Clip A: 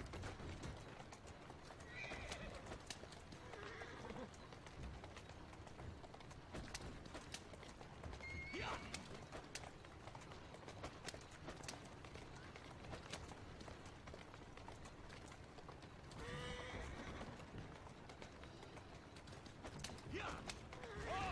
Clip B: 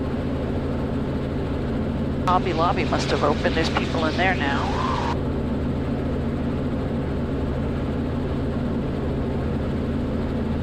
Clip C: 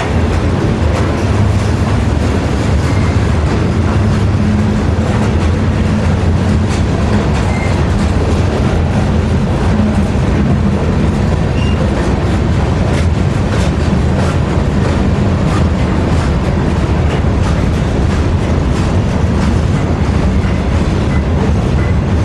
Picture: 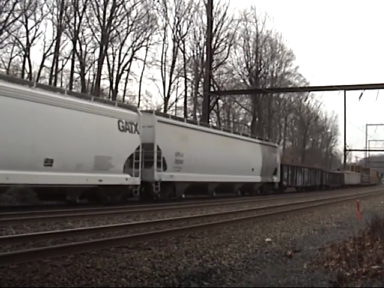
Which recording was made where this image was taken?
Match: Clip C